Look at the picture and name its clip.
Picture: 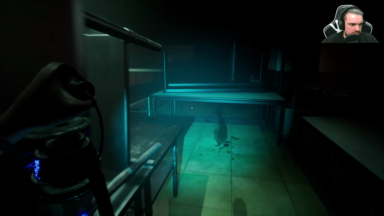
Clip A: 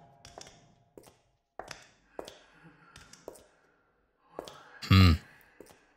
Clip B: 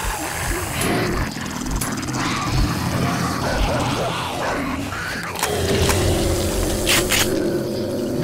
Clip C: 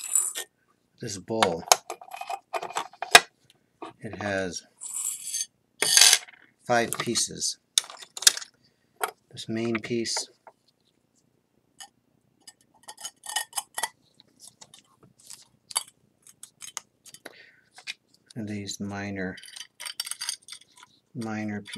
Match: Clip A